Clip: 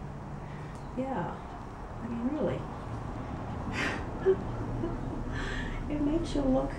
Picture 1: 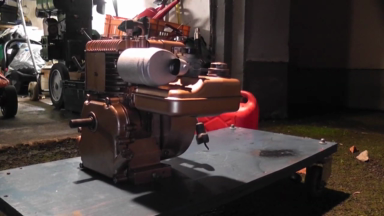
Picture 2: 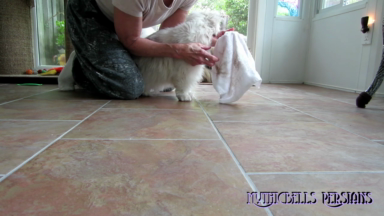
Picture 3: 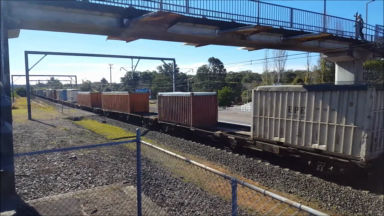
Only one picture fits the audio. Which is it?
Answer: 2